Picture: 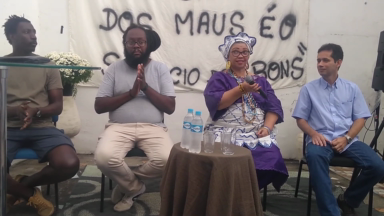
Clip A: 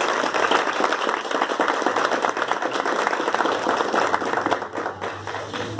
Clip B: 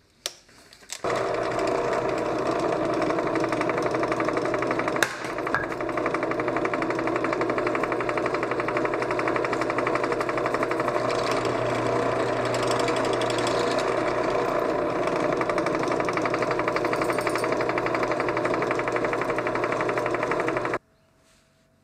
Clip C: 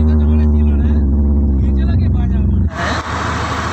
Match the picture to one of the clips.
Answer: A